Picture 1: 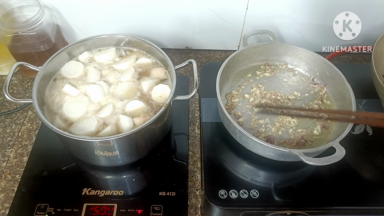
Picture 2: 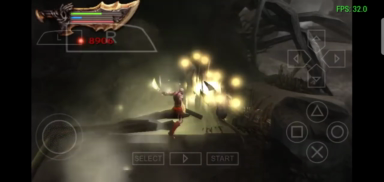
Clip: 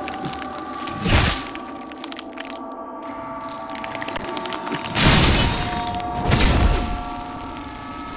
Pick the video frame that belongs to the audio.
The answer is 2